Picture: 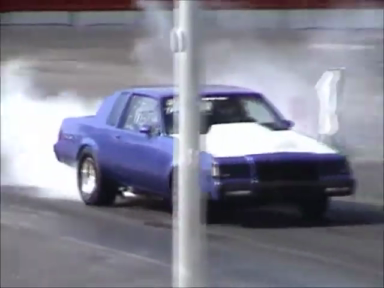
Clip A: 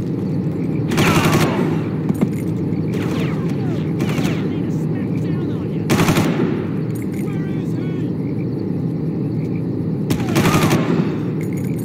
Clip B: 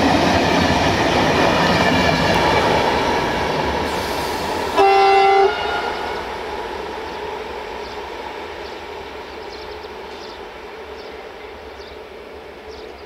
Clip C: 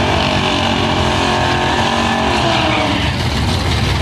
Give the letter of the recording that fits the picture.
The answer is C